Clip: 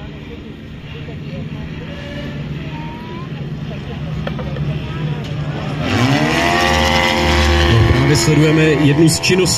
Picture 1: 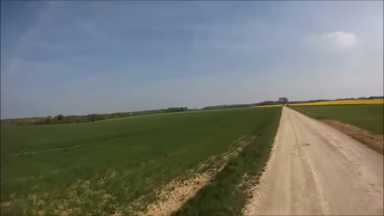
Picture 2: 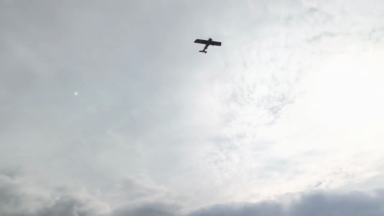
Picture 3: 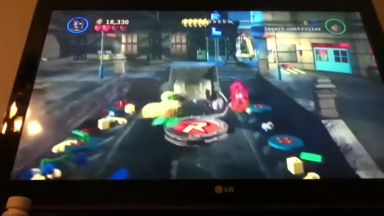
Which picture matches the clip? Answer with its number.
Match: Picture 2